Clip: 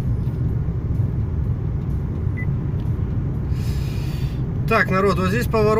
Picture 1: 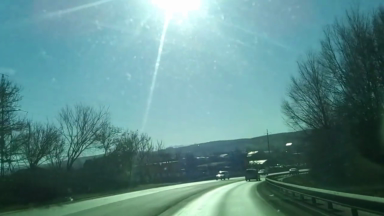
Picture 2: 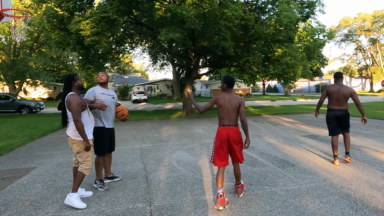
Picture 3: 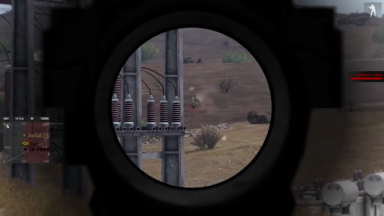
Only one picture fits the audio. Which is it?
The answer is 1